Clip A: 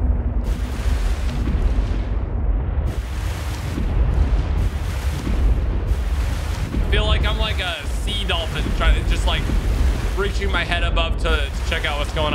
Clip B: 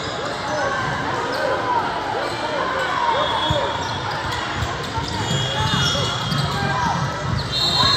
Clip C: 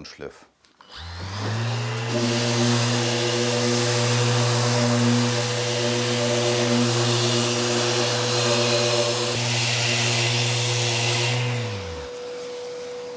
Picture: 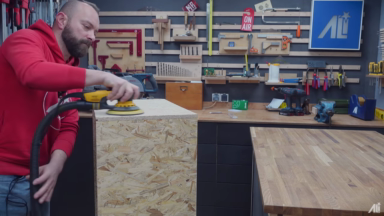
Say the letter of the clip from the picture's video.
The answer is C